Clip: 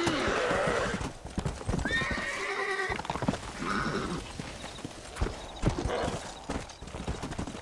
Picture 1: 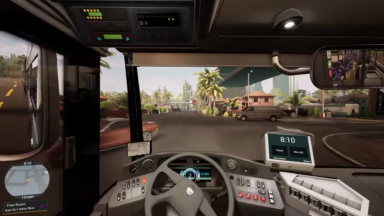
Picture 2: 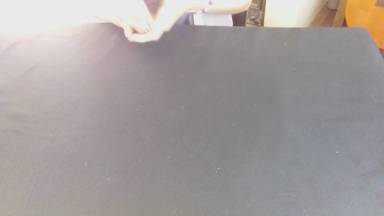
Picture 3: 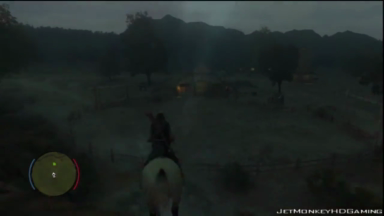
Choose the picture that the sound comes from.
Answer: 3